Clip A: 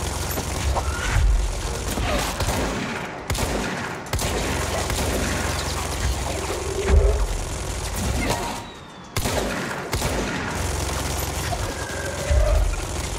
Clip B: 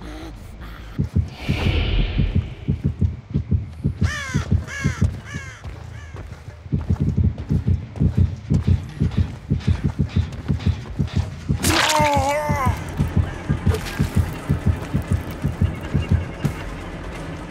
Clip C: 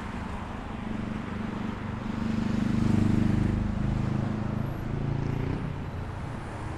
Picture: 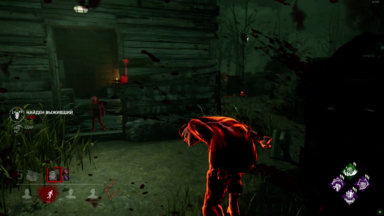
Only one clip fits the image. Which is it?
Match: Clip B